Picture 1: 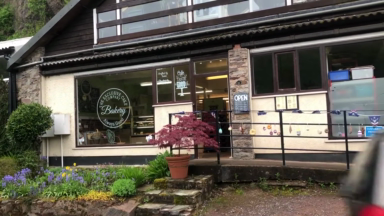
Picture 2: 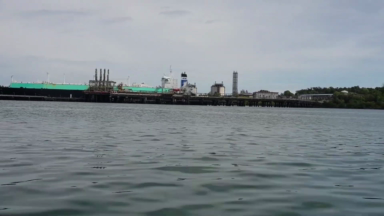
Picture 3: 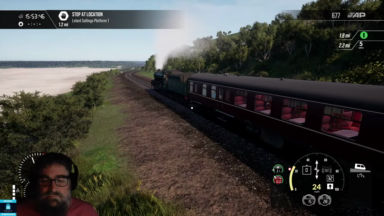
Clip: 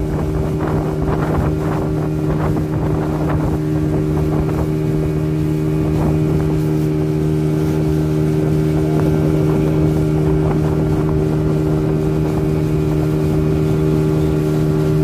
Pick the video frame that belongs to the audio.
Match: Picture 2